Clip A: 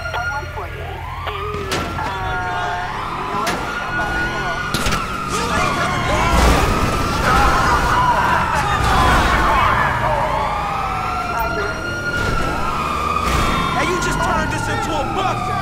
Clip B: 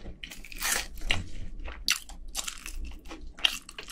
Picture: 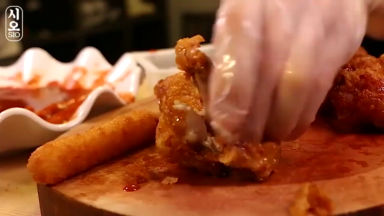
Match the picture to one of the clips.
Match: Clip B